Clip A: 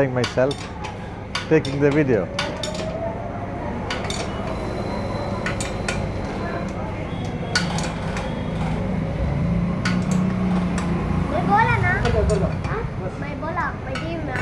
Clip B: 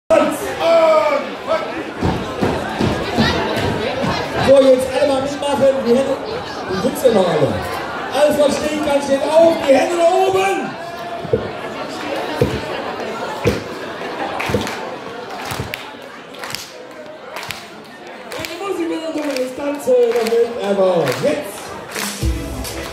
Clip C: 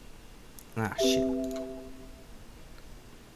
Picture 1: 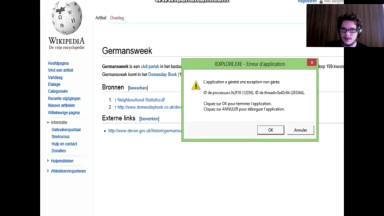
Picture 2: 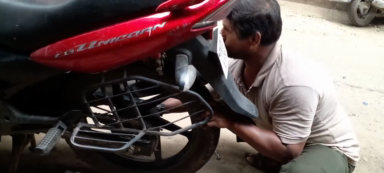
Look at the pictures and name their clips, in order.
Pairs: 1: C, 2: A